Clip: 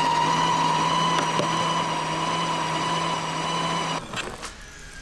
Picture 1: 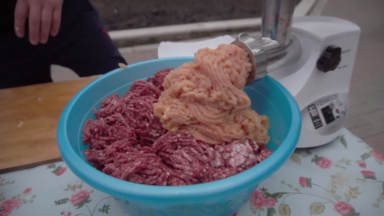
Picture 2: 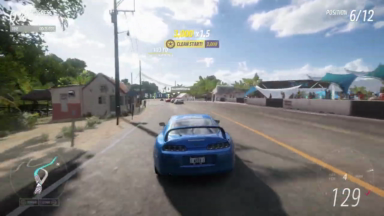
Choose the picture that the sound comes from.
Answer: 1